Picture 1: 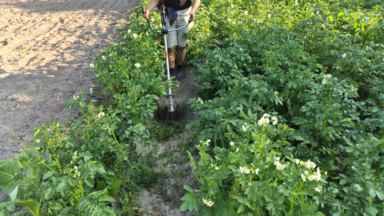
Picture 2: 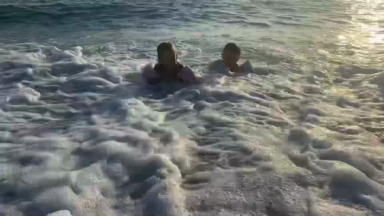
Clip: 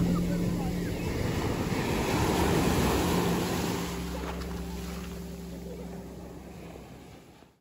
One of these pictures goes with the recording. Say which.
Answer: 2